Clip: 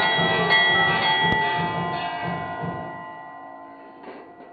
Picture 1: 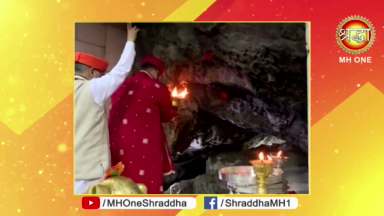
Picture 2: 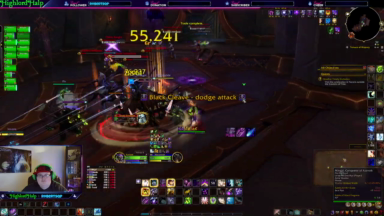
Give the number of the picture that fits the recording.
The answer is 1